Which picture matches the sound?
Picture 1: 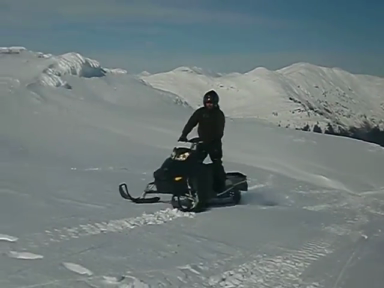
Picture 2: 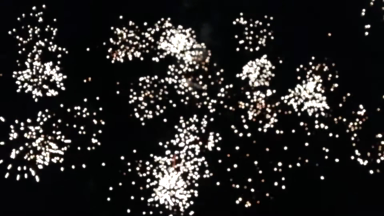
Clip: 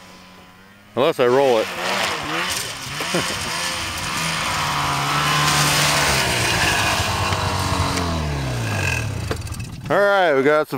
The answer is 1